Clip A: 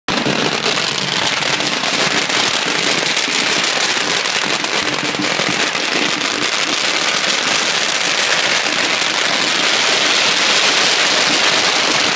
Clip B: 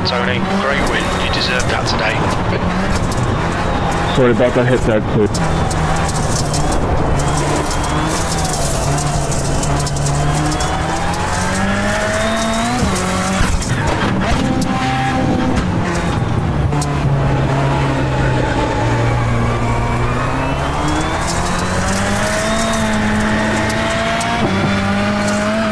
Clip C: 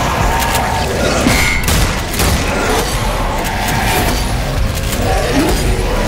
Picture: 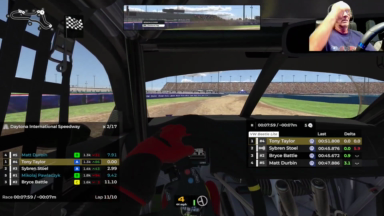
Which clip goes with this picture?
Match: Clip B